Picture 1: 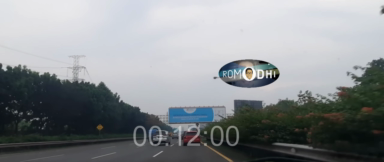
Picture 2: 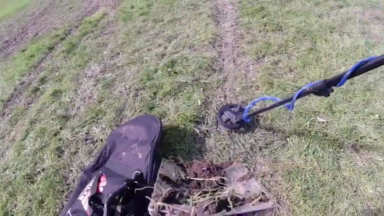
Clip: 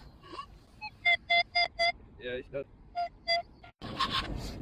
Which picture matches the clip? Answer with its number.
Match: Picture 2